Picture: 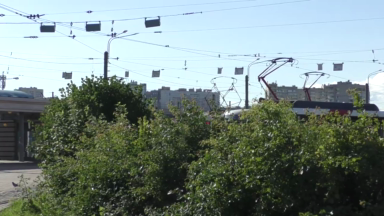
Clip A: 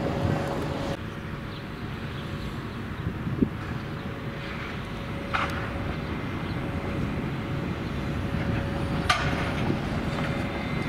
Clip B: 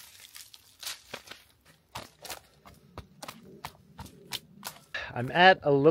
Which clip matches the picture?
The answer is A